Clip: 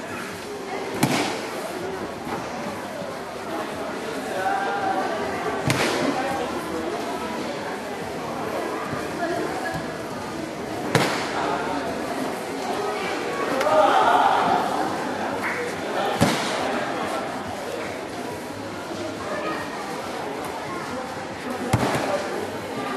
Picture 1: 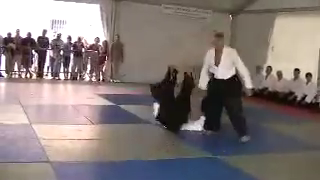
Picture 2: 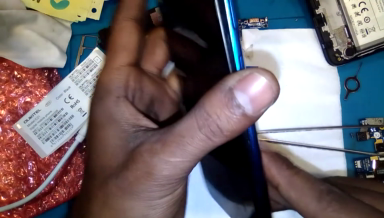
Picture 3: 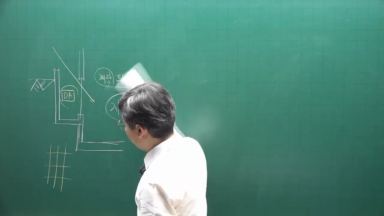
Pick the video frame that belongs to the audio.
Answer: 1